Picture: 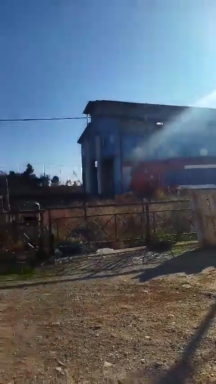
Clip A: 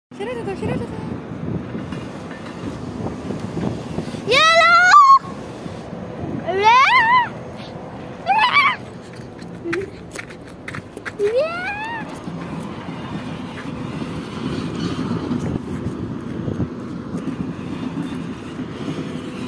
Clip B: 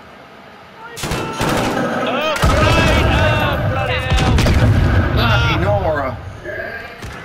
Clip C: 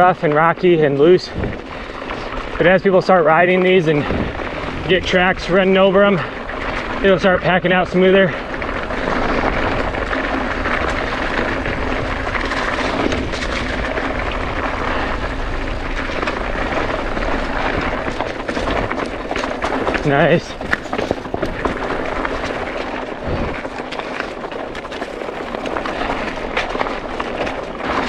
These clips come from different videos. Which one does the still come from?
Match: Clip A